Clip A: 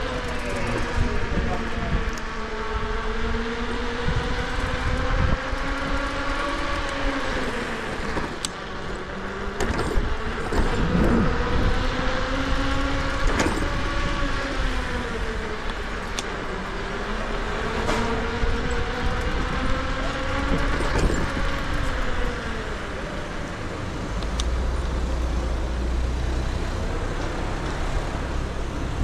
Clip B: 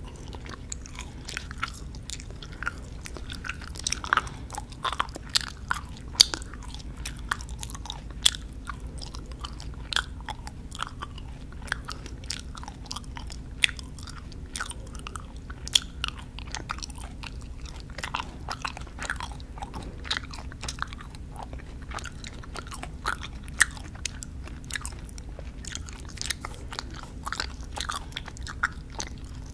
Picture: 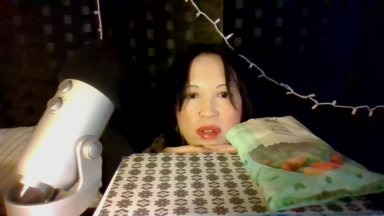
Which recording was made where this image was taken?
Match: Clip B